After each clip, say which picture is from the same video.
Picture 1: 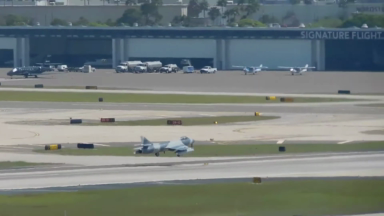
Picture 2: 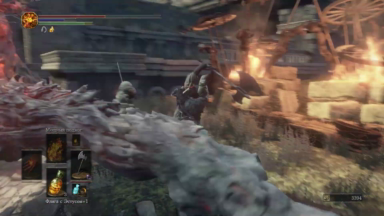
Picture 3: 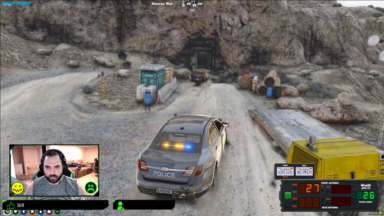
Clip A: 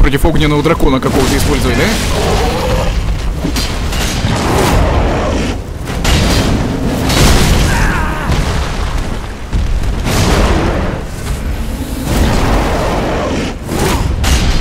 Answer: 2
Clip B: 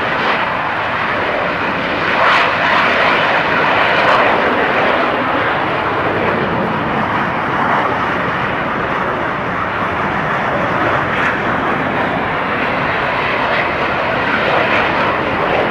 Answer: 1